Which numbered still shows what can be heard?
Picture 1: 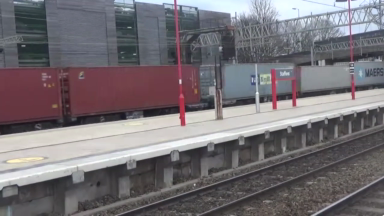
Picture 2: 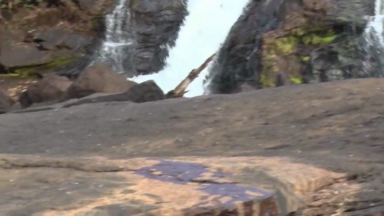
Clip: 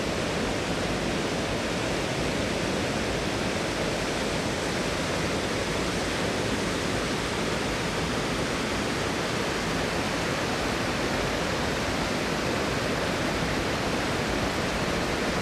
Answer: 2